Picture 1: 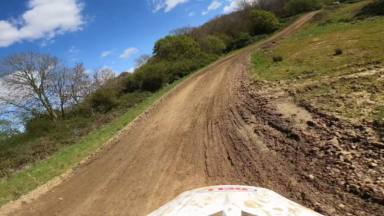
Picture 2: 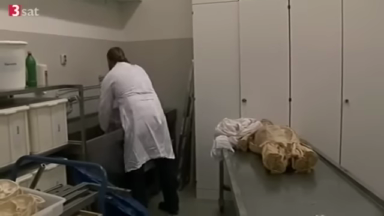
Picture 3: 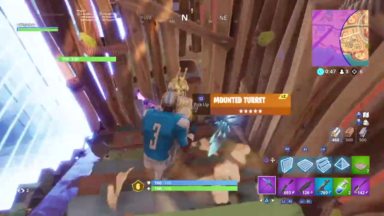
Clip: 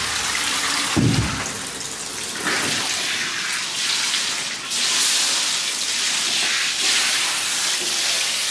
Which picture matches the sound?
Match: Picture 2